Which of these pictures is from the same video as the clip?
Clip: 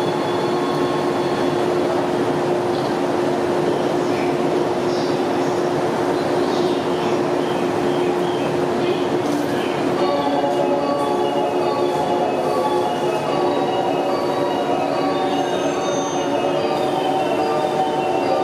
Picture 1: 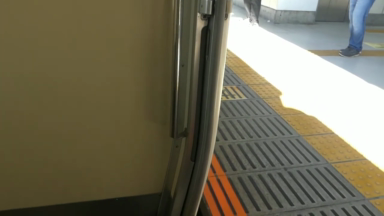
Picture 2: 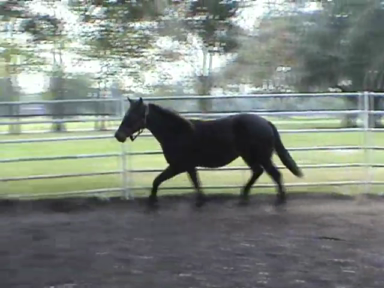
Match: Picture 1